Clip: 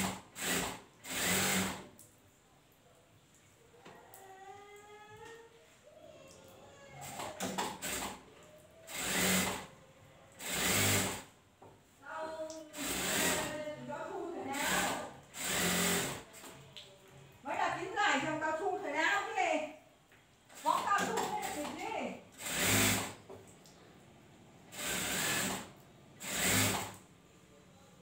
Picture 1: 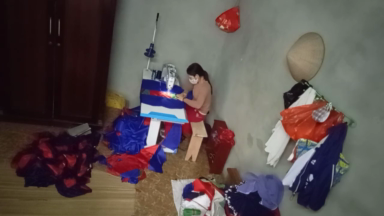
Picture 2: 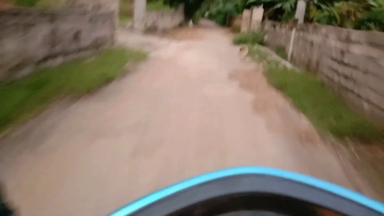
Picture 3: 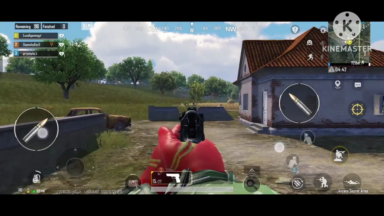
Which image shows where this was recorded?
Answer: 1